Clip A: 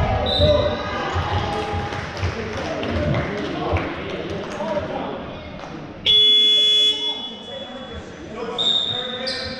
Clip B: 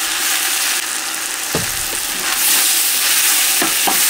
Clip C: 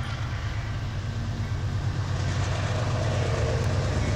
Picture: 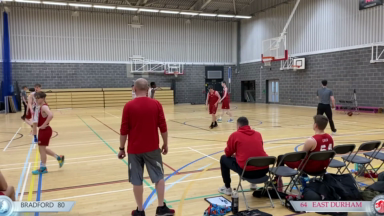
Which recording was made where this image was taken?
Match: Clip A